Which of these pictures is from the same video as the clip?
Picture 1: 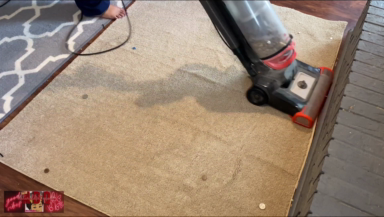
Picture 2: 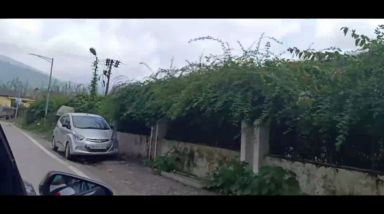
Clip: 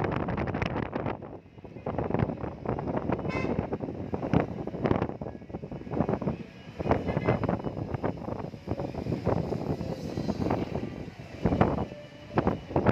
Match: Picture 2